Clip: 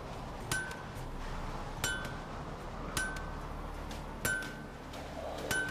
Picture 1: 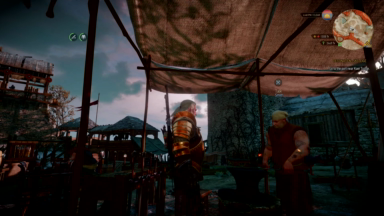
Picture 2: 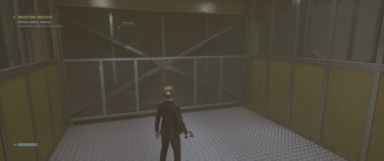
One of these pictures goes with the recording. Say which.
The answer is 1